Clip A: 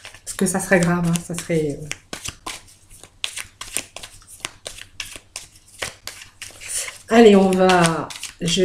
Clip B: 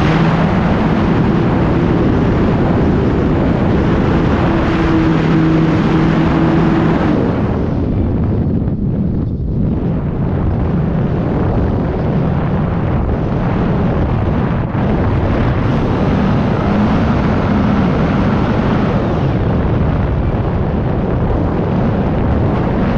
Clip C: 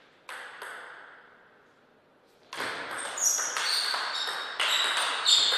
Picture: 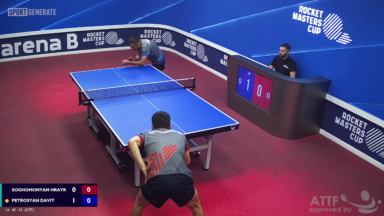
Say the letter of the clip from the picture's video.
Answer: C